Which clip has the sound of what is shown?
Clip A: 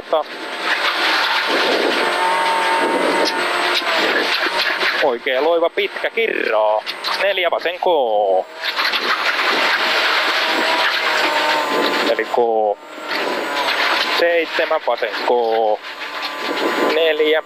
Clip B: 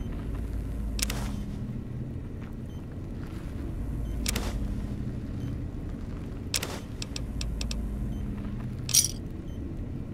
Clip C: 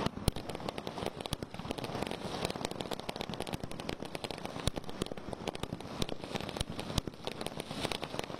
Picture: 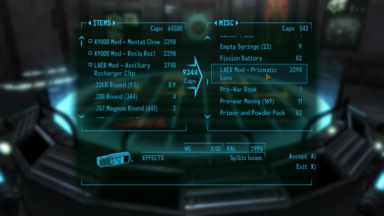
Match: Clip B